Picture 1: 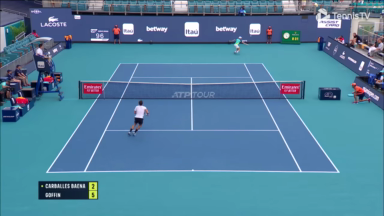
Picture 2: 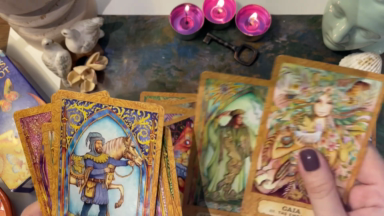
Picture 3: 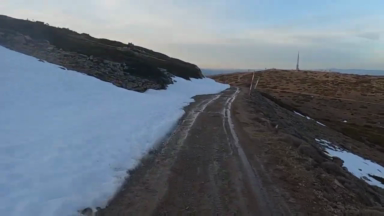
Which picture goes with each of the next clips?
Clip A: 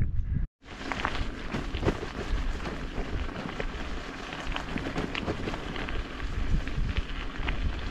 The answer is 3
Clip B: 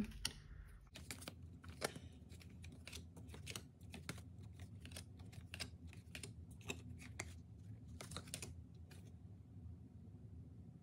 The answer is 2